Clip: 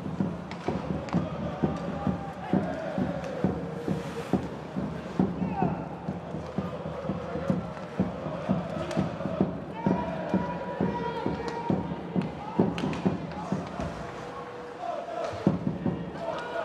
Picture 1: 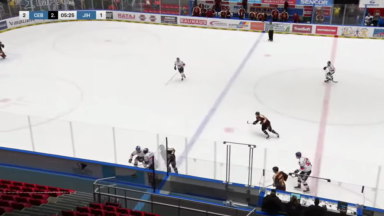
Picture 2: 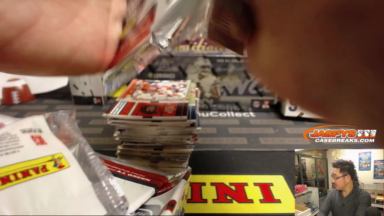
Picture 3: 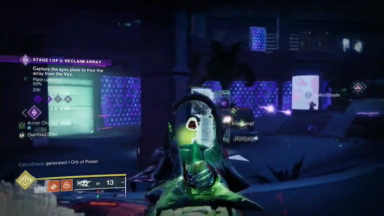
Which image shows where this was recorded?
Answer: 1